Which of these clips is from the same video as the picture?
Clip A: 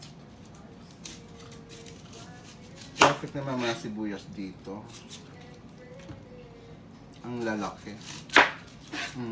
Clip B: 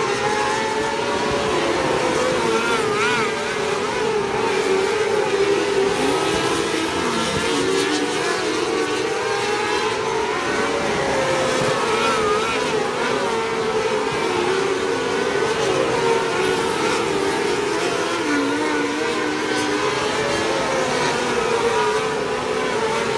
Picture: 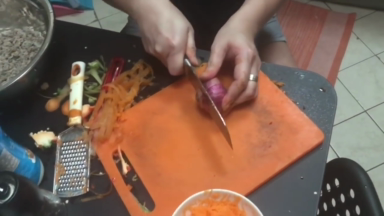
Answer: A